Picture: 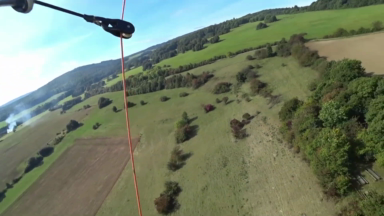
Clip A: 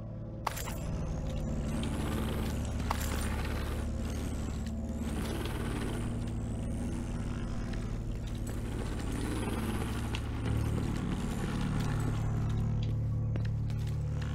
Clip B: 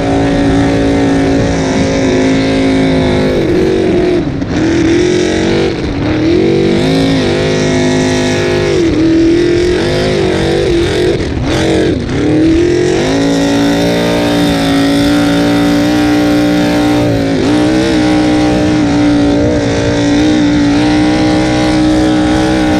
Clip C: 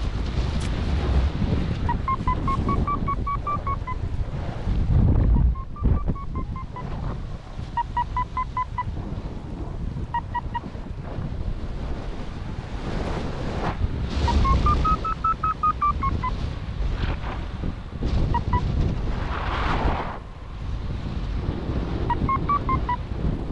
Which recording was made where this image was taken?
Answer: C